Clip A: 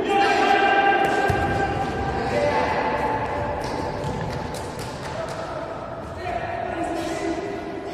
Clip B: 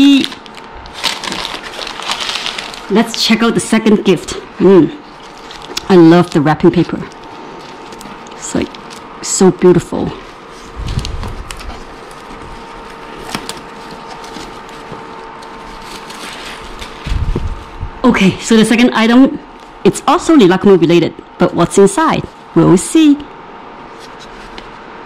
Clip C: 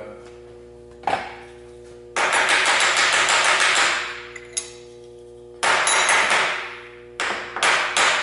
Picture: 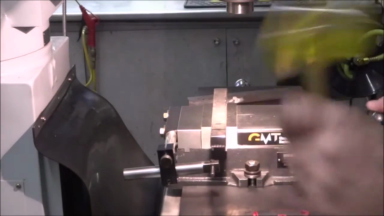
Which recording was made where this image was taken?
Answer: C